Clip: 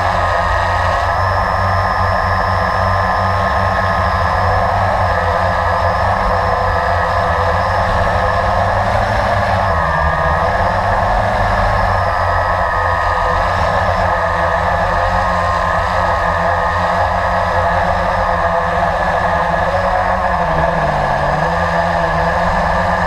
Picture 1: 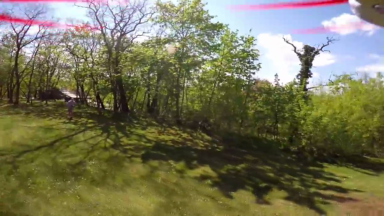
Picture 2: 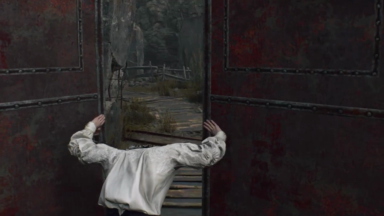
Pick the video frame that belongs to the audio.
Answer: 1